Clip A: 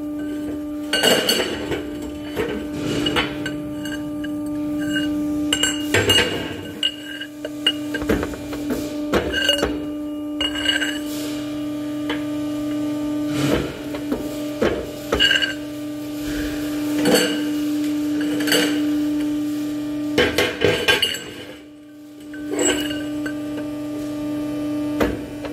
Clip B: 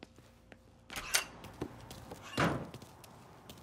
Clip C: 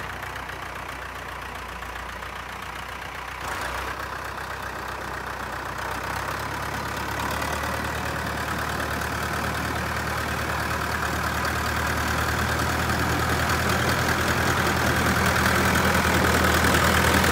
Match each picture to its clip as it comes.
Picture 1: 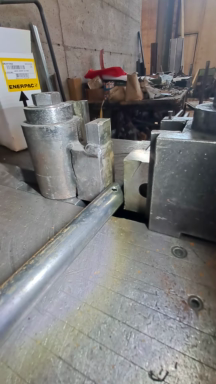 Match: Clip A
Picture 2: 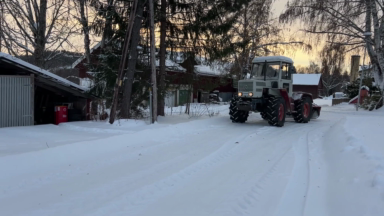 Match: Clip C